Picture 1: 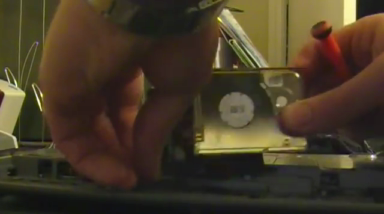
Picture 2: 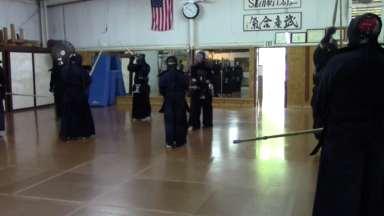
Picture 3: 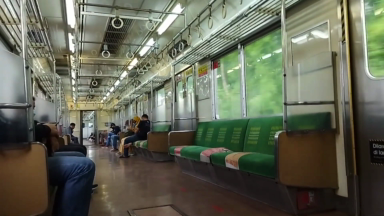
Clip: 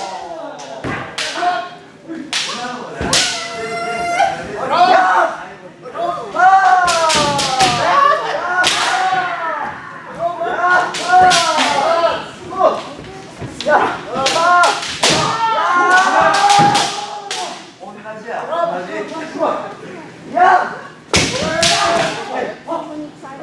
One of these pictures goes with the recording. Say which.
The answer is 2